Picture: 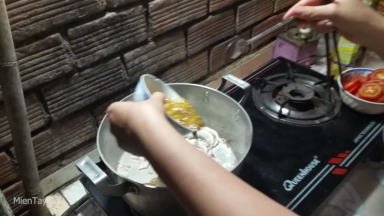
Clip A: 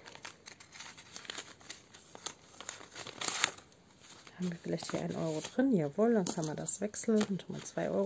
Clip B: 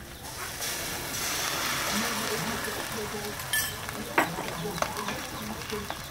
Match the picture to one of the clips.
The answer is B